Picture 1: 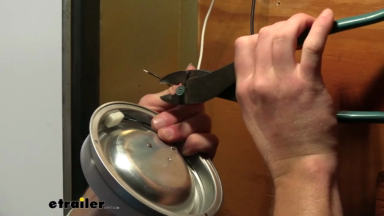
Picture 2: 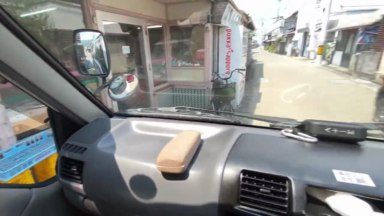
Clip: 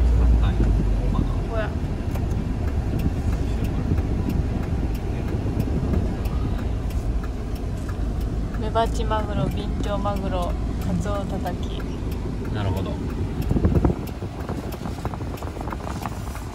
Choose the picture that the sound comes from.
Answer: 2